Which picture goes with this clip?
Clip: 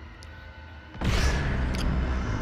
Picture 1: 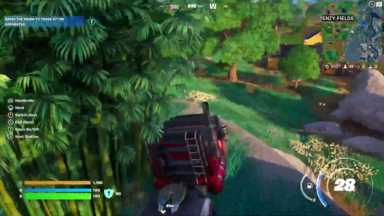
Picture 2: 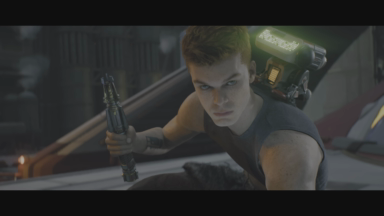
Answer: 2